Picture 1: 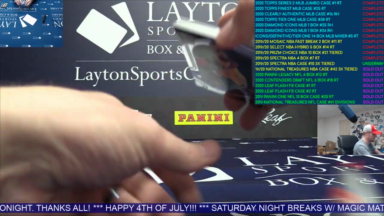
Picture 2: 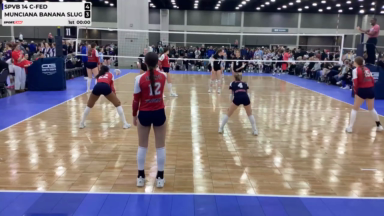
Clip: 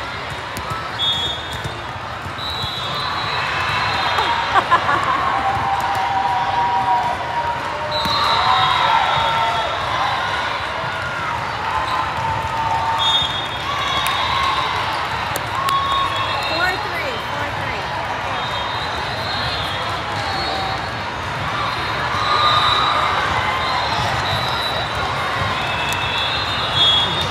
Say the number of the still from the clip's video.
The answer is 2